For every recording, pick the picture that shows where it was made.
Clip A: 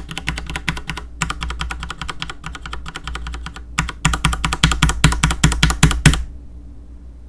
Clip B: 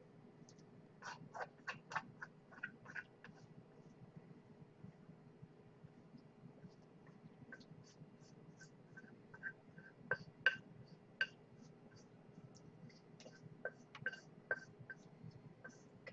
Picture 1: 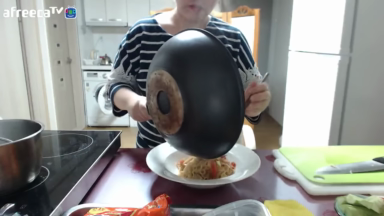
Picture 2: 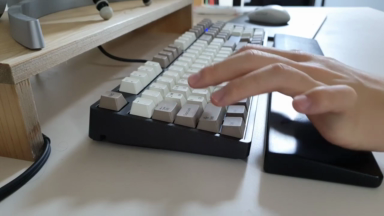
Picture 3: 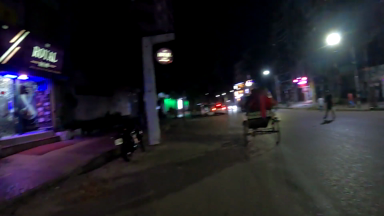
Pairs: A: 2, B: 1